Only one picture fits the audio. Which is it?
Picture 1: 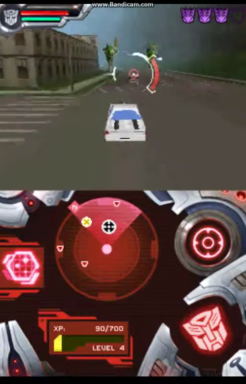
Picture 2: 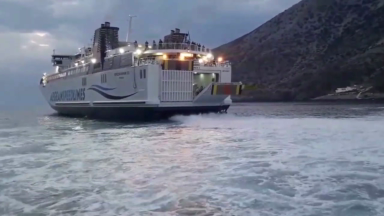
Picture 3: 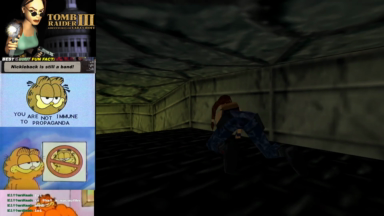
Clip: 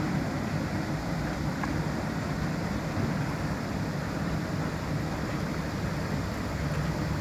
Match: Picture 2